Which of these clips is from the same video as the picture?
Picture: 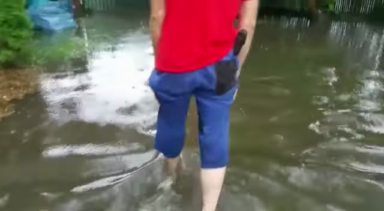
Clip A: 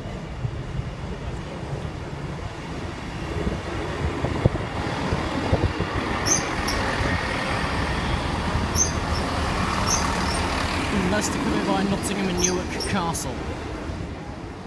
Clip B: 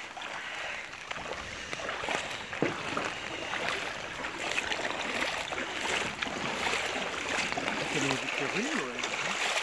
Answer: B